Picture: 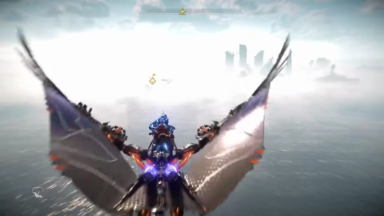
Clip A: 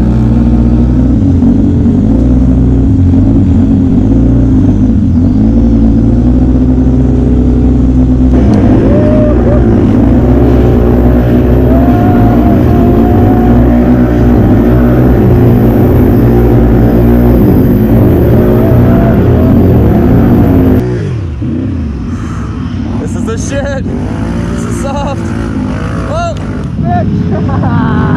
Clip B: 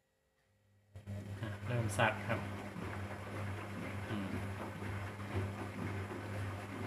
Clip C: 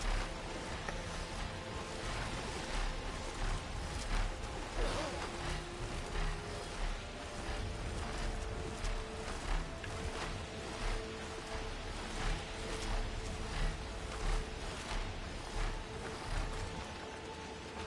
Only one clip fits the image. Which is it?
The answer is C